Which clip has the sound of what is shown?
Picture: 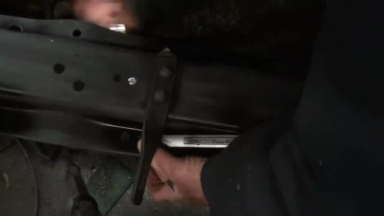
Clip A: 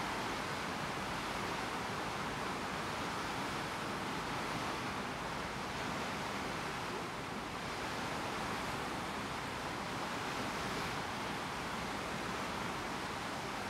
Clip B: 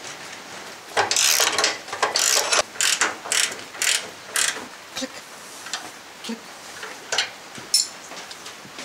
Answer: B